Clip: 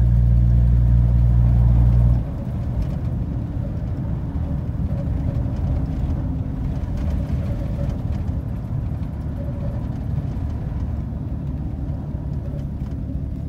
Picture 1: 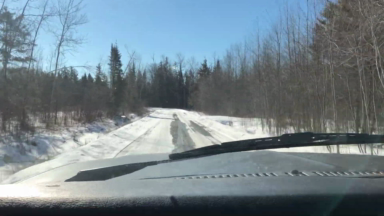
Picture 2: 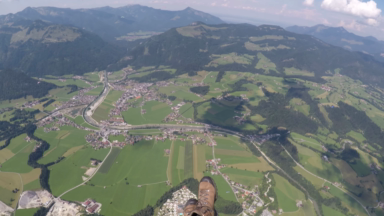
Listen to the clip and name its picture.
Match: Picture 1